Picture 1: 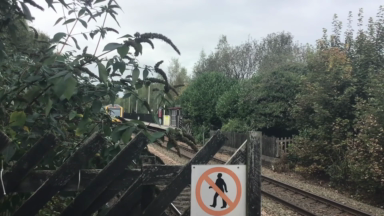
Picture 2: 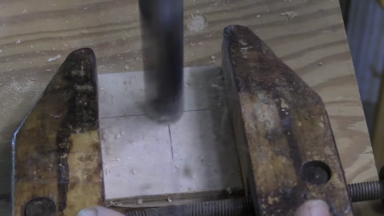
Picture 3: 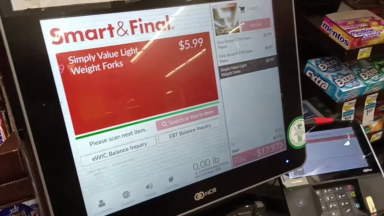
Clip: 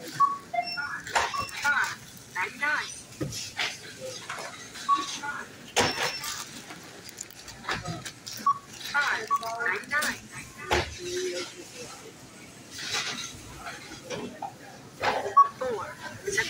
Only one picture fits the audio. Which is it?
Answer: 3